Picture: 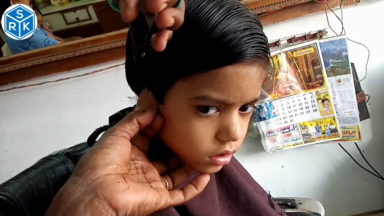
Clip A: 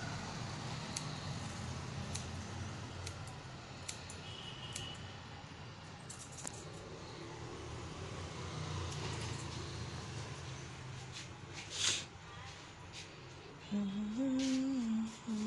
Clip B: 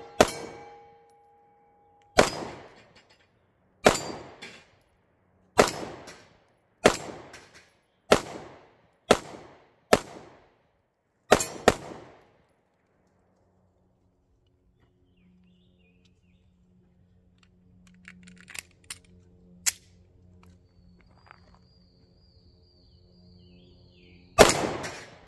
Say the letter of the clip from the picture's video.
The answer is A